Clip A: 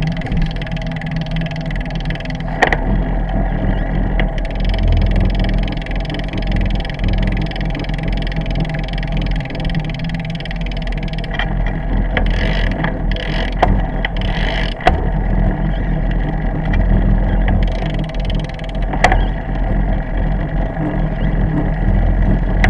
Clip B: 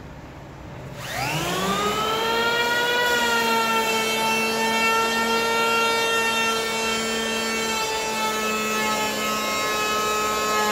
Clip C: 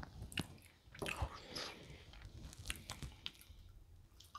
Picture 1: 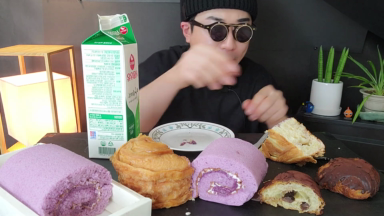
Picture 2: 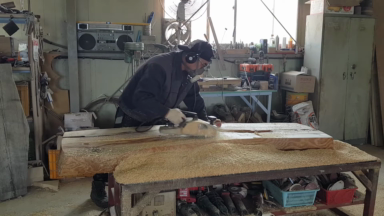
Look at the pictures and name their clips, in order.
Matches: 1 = C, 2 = B